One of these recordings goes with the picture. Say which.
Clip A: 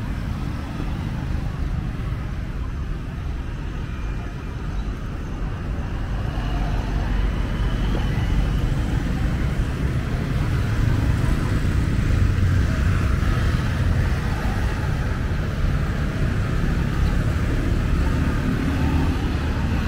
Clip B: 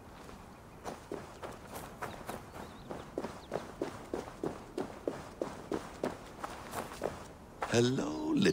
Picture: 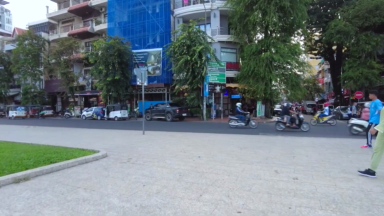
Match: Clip A